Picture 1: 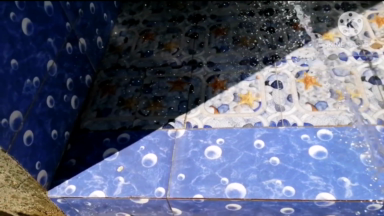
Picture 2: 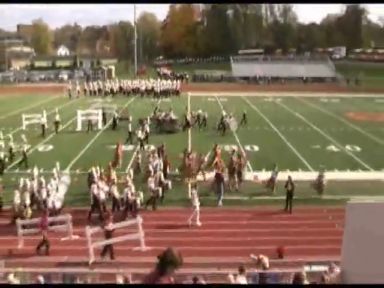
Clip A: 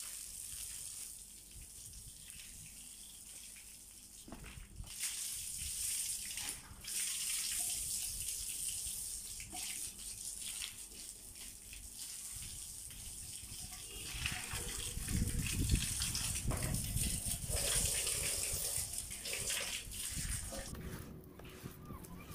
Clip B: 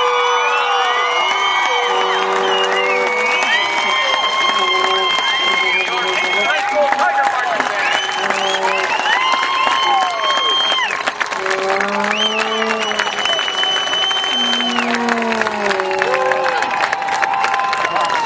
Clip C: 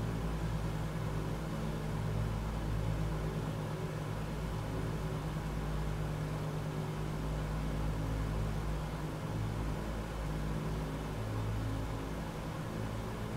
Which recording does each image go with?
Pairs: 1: A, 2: B